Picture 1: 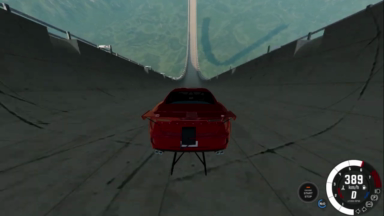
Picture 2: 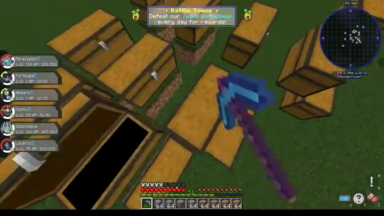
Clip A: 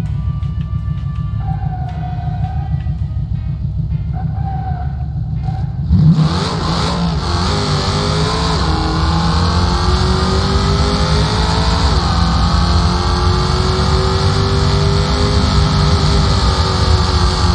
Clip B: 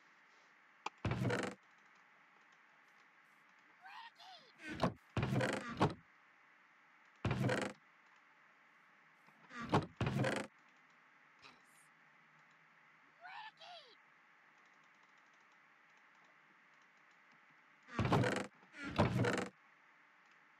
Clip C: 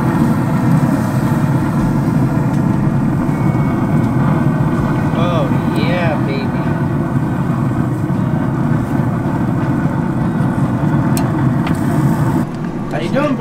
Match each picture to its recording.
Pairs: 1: A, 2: B